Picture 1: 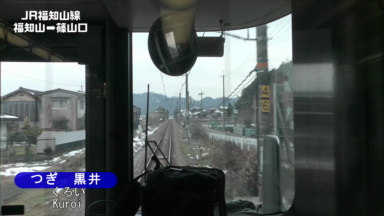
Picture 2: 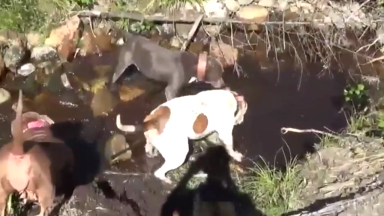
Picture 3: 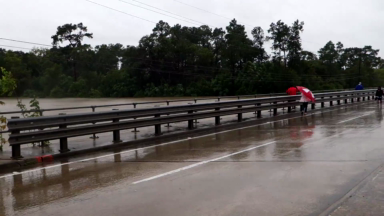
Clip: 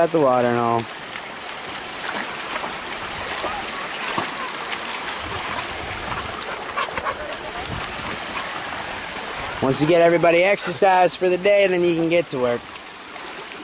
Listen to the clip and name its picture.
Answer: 2